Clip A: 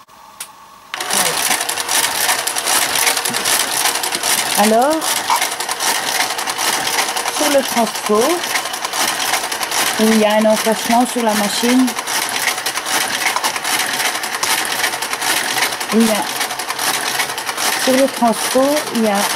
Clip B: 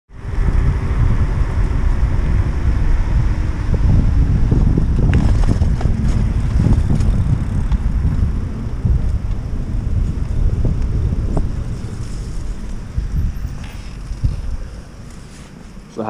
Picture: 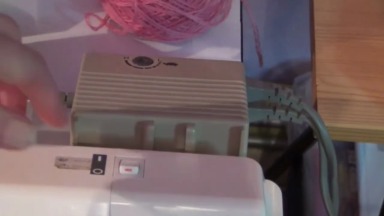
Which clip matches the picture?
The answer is A